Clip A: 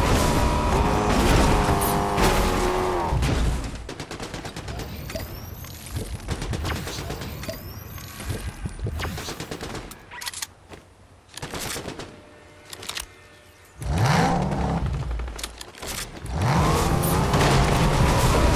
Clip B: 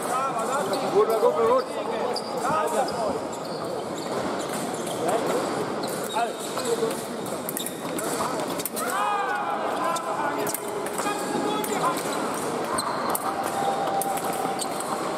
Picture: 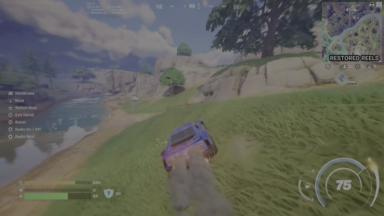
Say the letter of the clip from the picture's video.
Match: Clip A